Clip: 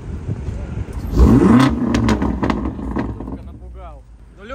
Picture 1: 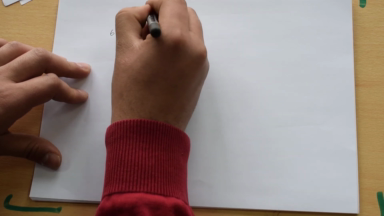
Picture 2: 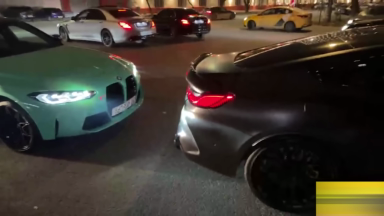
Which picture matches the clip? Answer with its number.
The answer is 2